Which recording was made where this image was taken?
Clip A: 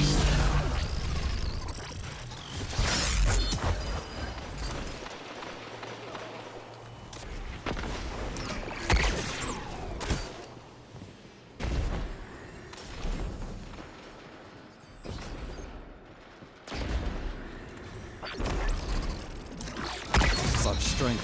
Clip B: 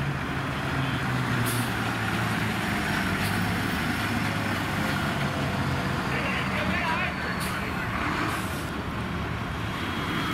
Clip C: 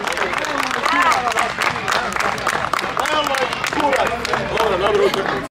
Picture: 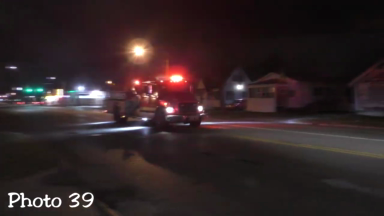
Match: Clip B